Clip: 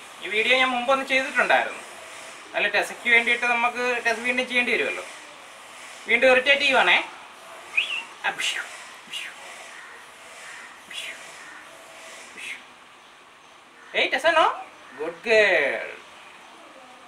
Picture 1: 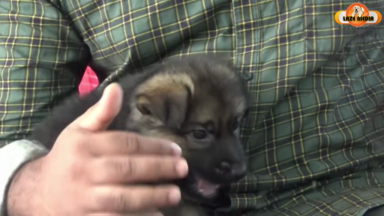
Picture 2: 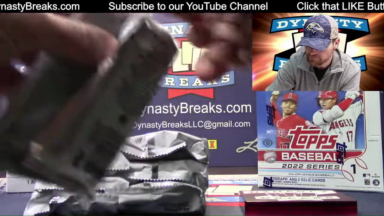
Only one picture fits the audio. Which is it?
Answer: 1